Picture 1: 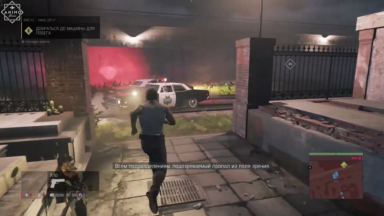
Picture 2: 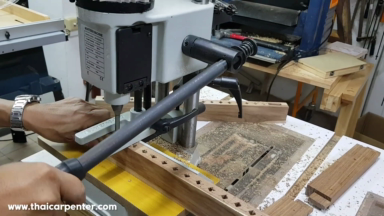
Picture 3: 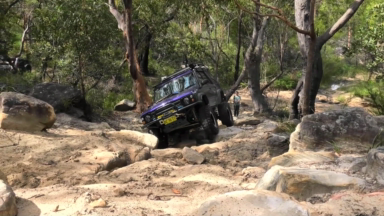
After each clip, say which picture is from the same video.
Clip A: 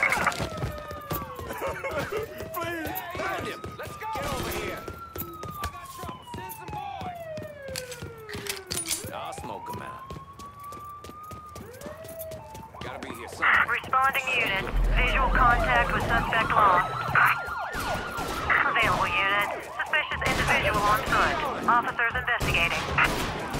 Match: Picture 1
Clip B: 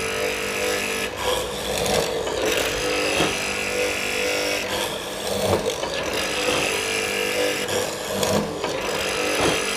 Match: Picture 2